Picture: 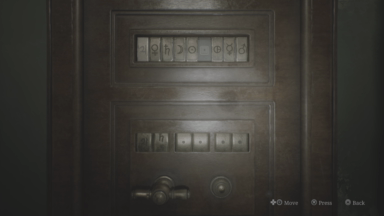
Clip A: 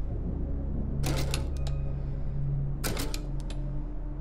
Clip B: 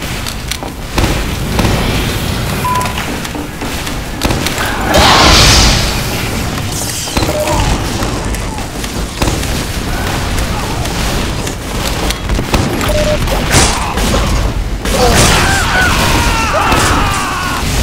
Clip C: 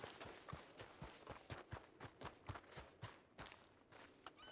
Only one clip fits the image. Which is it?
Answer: A